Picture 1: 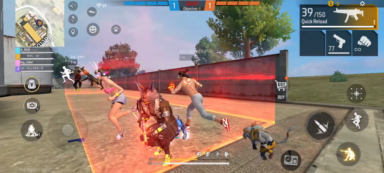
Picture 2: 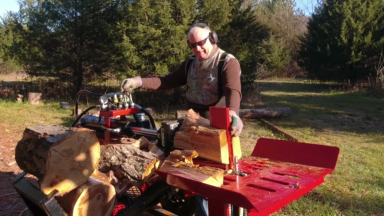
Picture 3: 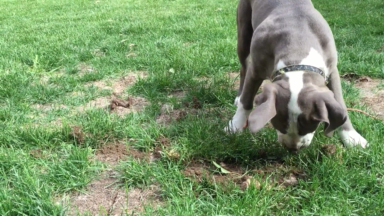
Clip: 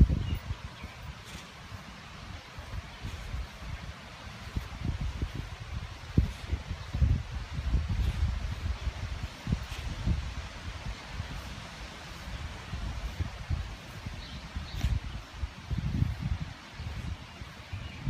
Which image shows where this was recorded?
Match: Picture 3